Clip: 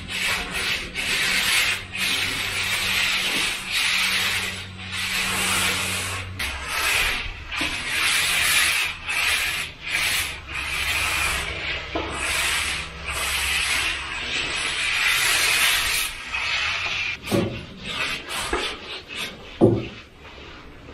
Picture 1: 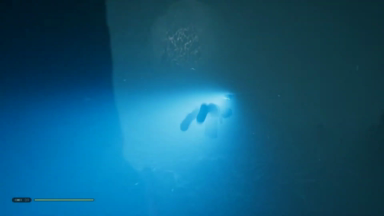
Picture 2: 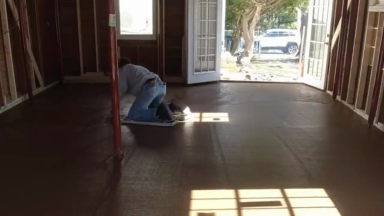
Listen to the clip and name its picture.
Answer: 2